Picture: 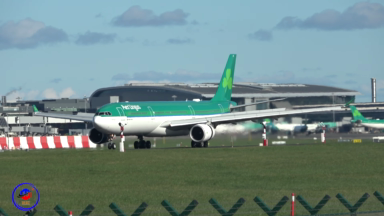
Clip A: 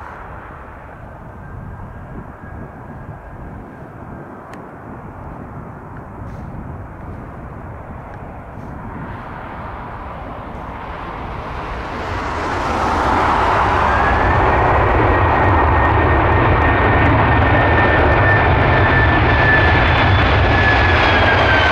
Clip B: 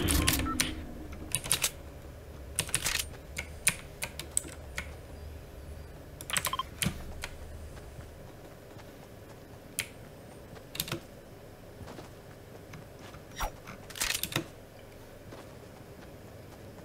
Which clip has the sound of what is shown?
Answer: A